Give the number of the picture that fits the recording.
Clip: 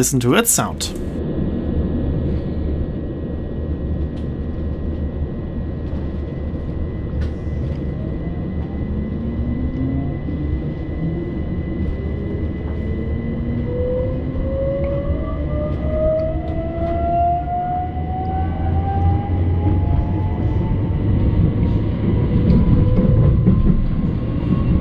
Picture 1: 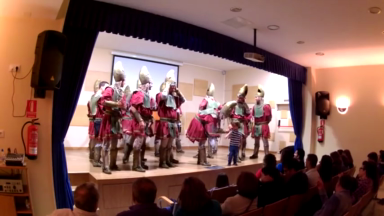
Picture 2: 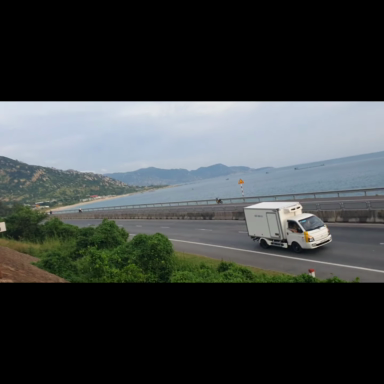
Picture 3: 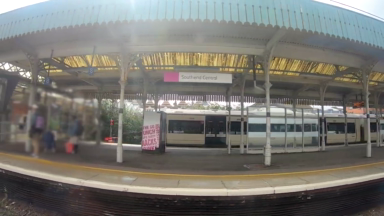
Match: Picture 3